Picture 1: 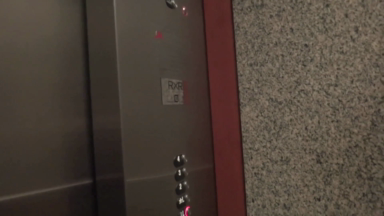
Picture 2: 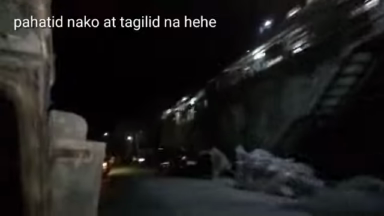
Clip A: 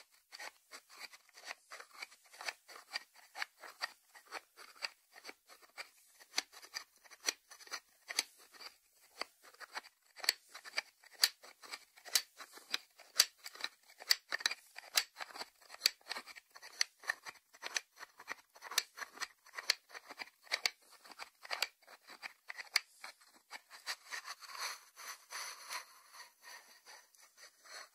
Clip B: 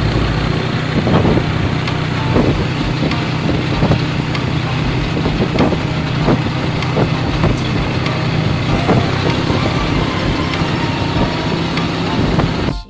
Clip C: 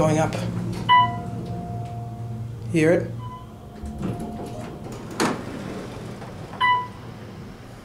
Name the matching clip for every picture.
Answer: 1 C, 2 B